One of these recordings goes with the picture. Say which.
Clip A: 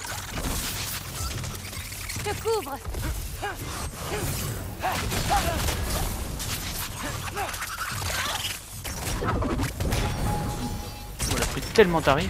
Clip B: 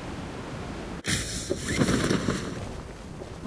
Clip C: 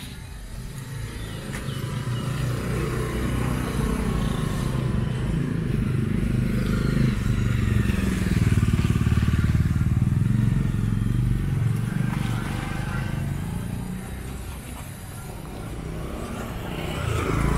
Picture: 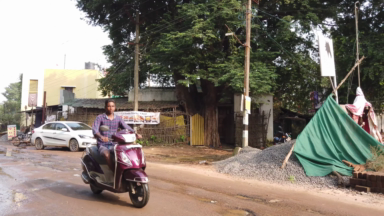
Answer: C